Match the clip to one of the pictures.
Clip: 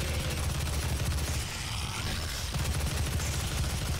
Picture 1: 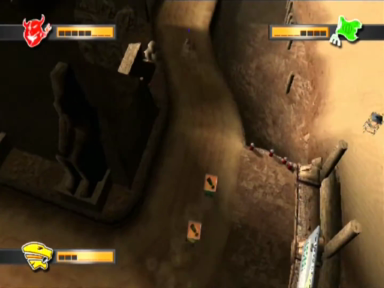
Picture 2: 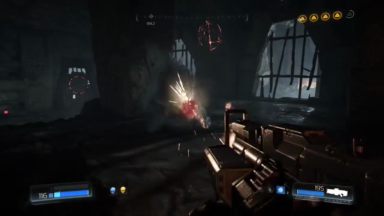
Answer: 2